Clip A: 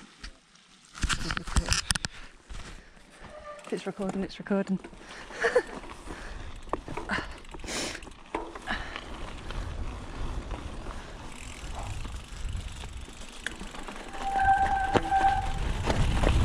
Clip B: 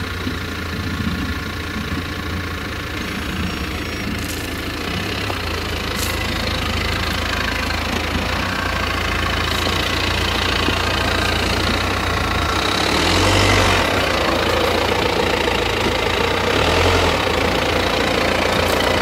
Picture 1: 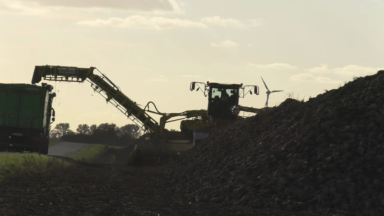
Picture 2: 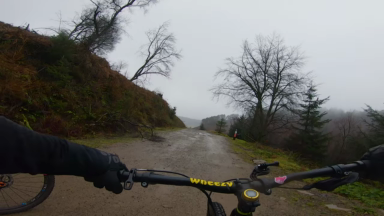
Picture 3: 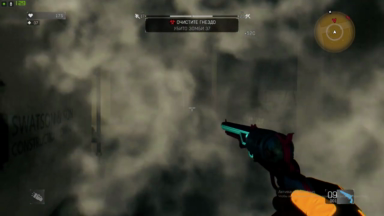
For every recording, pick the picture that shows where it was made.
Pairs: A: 2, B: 1